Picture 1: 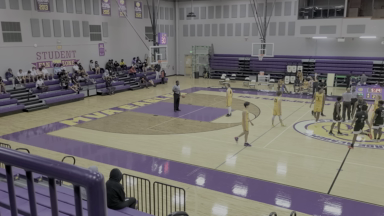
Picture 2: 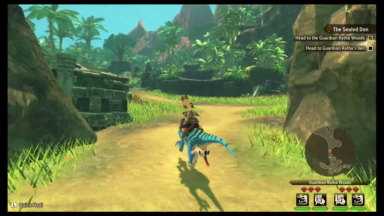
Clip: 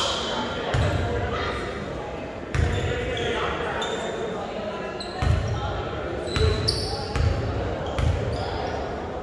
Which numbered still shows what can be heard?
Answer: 1